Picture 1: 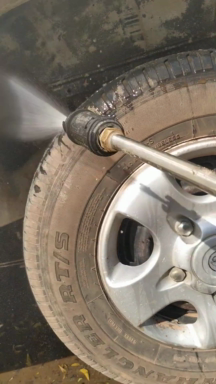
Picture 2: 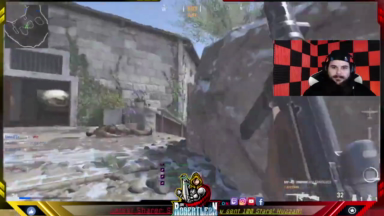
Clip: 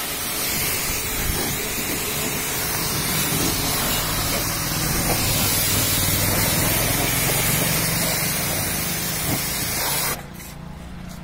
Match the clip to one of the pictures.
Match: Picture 1